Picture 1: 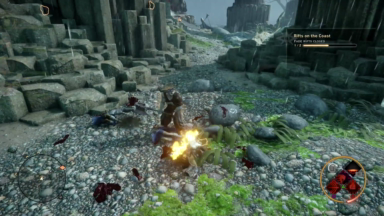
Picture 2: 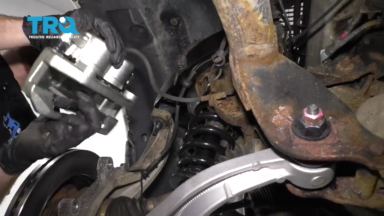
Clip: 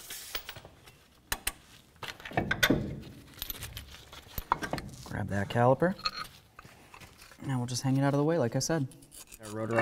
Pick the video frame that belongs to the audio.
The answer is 2